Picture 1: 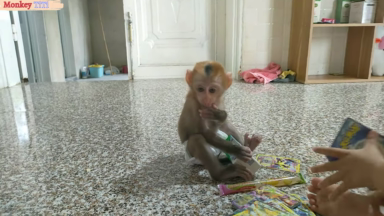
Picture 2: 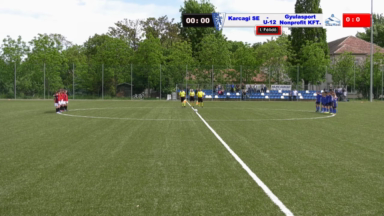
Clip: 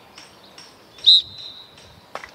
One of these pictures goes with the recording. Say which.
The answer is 2